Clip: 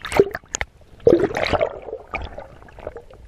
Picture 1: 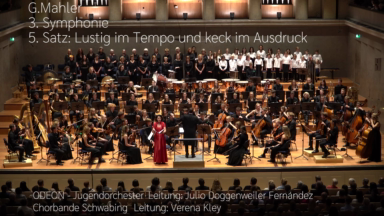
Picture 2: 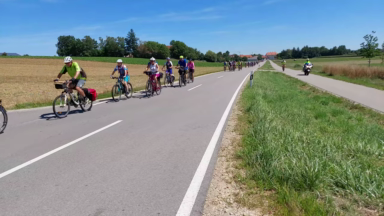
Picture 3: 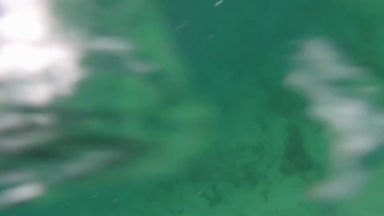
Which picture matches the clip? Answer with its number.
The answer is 3